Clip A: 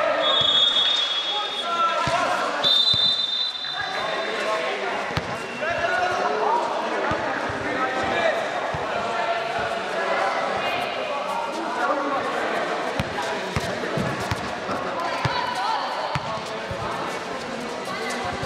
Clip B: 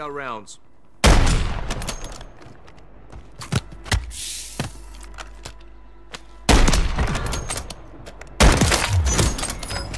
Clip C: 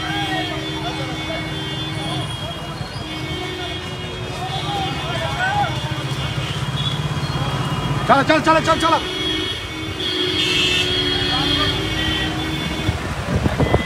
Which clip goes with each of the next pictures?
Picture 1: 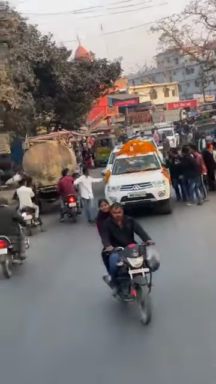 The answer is C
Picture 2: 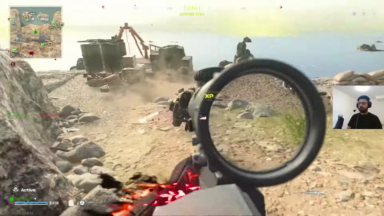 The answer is B